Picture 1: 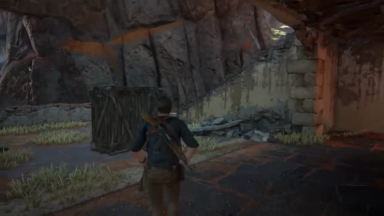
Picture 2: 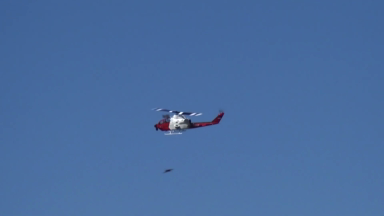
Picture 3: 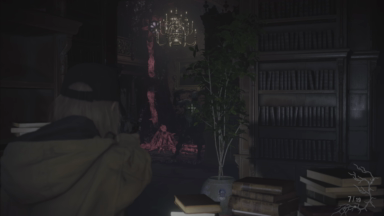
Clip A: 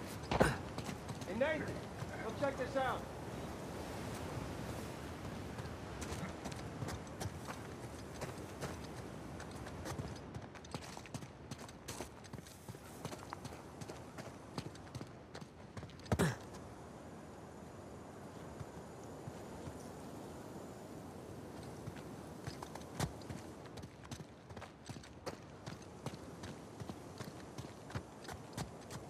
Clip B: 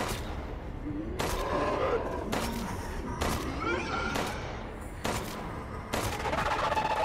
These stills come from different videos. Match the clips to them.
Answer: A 1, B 3